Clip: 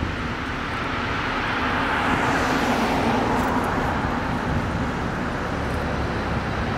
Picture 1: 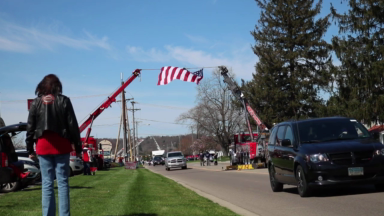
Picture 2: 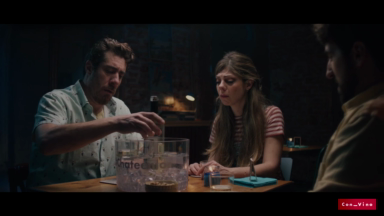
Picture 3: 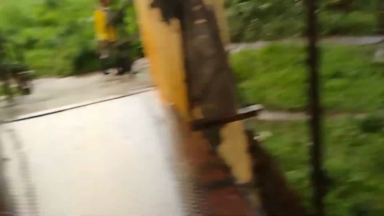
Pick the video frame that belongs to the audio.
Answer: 1